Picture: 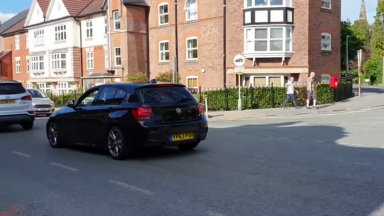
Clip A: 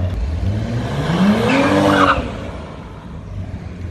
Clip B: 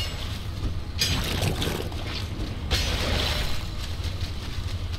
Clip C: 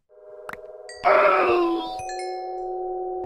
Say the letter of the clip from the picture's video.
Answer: A